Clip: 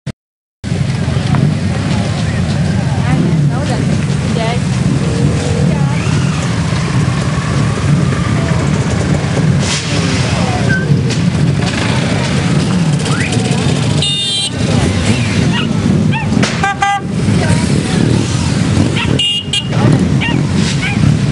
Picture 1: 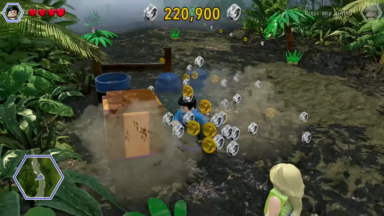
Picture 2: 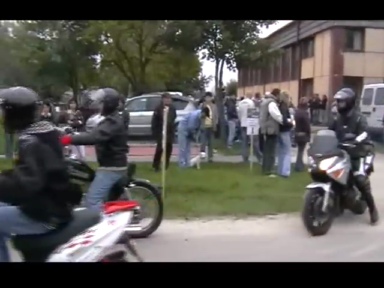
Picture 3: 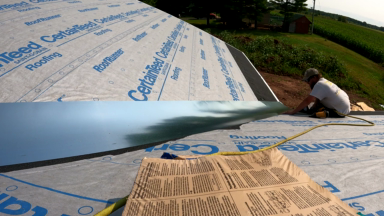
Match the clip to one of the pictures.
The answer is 2